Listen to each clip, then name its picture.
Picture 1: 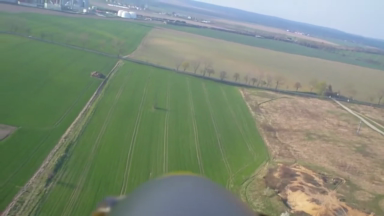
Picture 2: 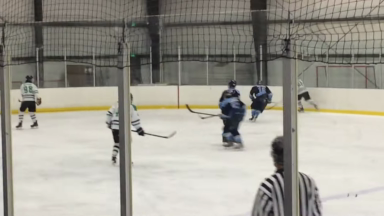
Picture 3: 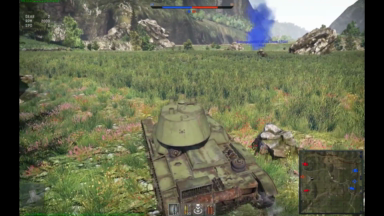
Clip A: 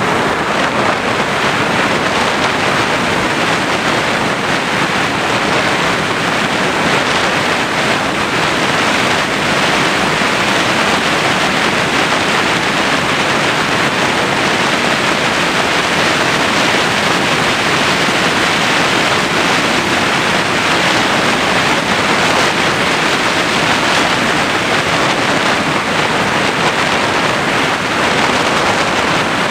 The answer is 1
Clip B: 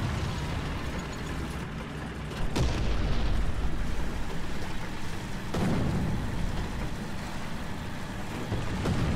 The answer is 3